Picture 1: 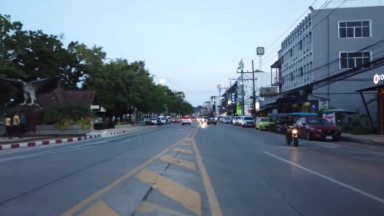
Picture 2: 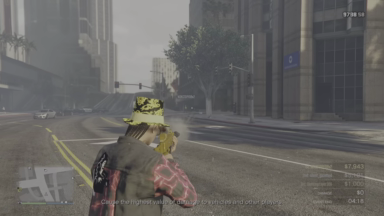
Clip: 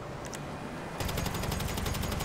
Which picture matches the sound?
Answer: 2